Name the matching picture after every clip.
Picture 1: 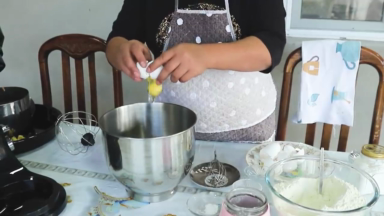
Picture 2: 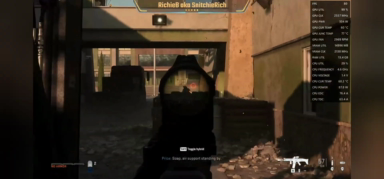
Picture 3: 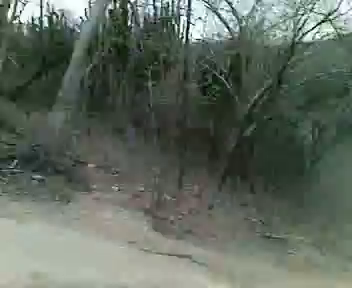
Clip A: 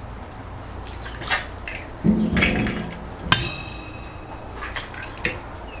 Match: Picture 1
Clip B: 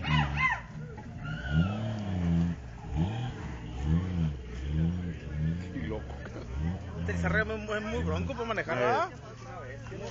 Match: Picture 3